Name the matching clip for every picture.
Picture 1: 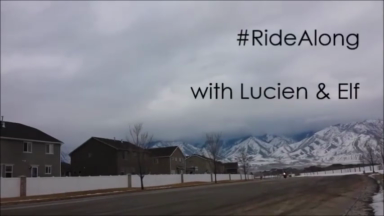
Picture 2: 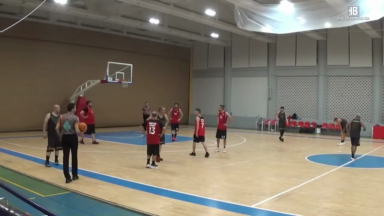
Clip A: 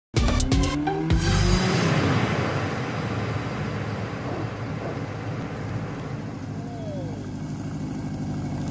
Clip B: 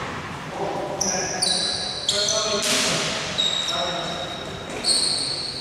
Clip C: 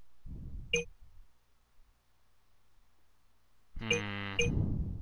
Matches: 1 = A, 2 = B